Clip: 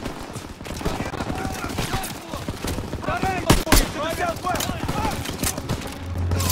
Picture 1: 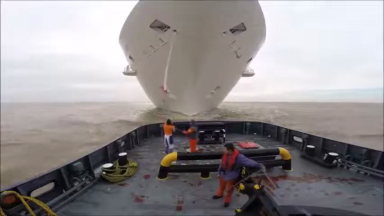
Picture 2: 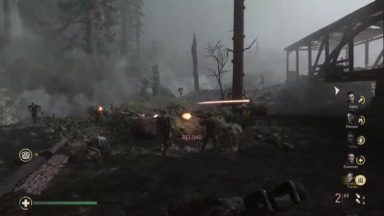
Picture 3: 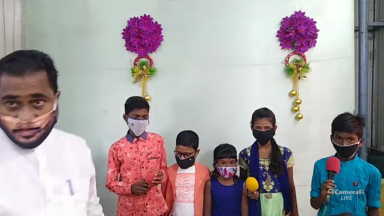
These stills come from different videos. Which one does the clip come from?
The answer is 2